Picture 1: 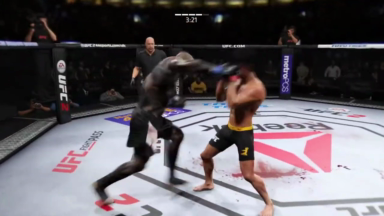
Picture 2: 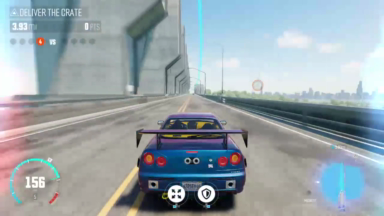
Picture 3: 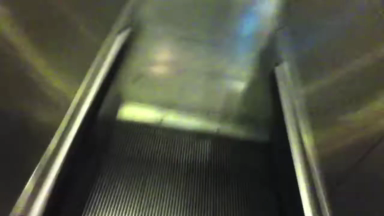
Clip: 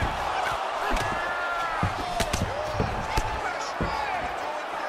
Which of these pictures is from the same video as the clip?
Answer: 1